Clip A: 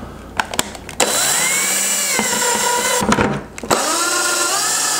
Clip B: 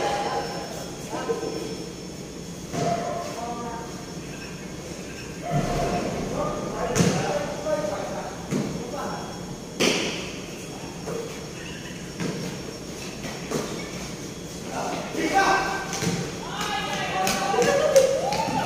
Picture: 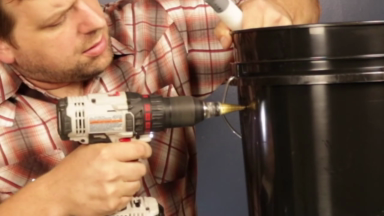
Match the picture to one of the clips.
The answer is A